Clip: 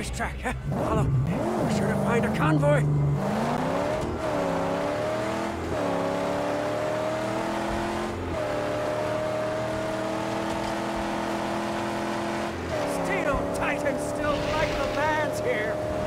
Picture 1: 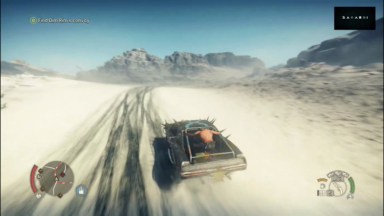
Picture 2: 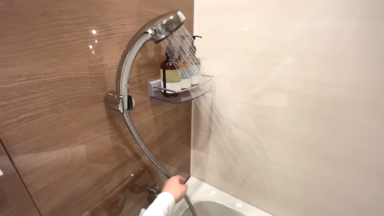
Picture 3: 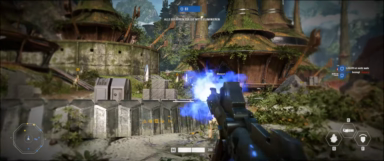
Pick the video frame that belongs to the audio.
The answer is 1